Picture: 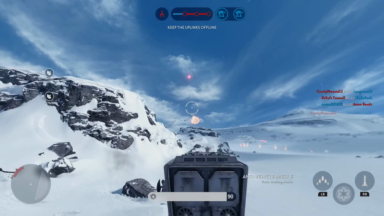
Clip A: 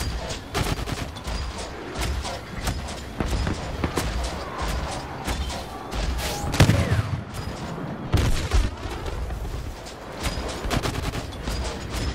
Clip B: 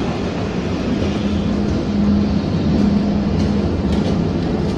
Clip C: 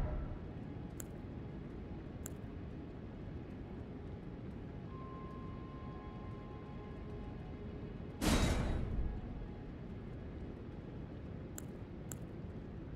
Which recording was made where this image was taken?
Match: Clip A